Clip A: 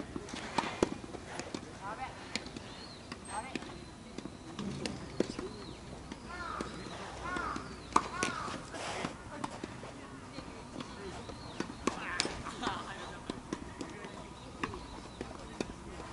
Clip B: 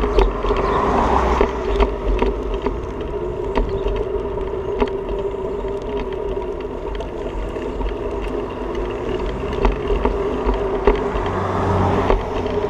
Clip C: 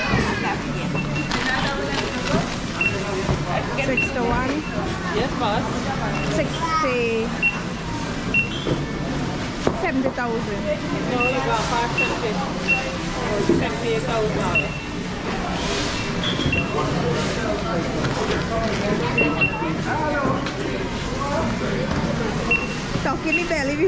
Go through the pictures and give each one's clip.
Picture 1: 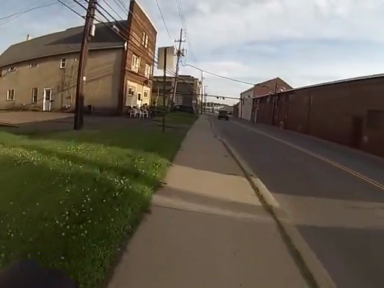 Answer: B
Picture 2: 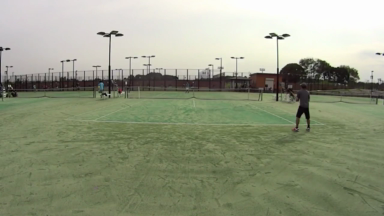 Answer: A